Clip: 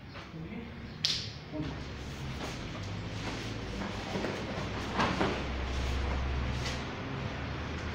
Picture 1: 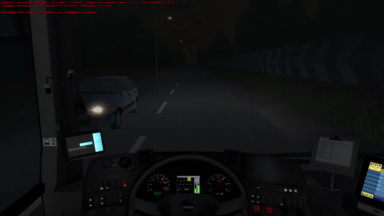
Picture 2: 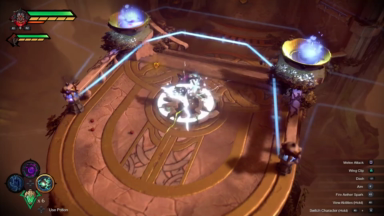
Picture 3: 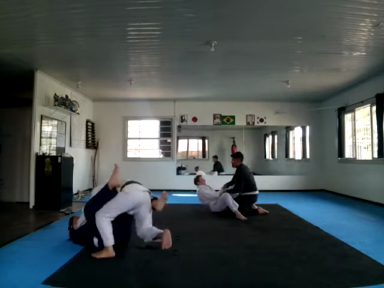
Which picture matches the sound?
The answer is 3